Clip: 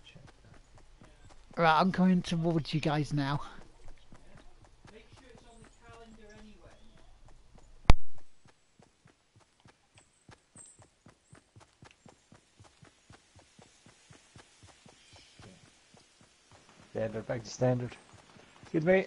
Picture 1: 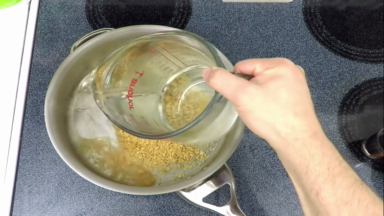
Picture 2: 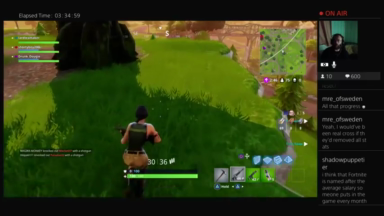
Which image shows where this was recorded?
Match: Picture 2